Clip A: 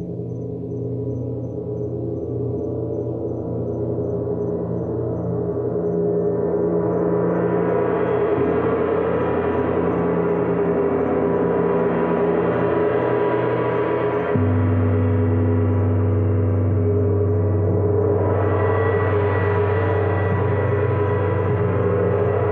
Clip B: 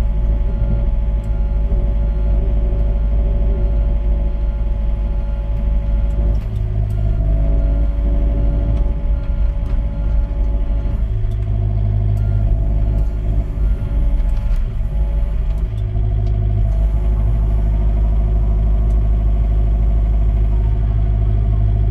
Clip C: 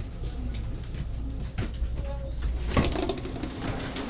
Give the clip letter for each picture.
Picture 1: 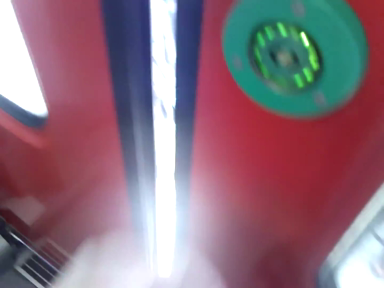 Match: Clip C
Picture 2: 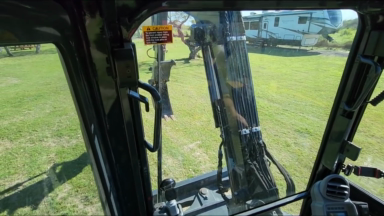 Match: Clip B